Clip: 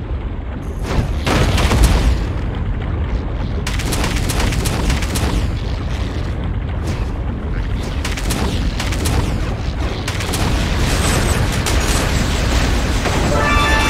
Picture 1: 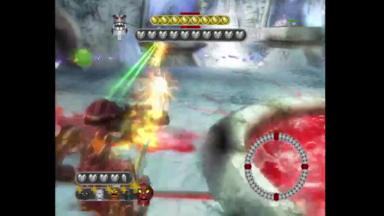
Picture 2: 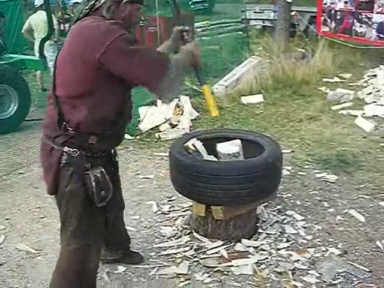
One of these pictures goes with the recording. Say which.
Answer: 1